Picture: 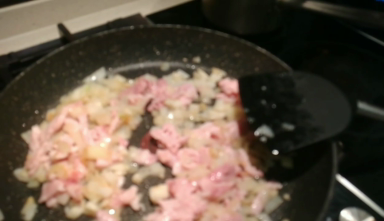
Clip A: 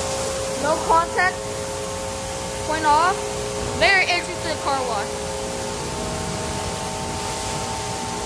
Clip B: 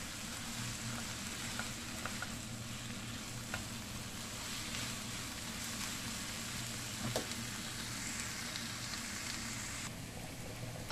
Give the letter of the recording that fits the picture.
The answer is B